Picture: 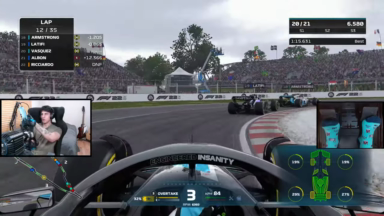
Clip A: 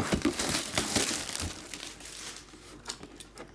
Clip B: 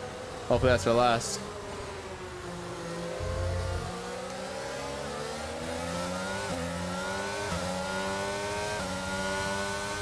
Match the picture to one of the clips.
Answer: B